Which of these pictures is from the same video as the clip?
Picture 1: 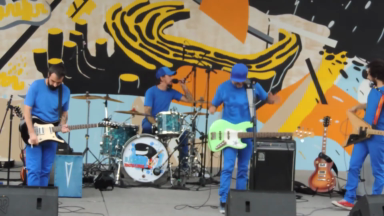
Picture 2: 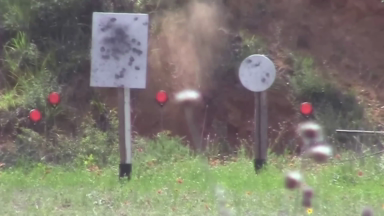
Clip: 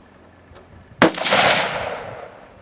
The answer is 2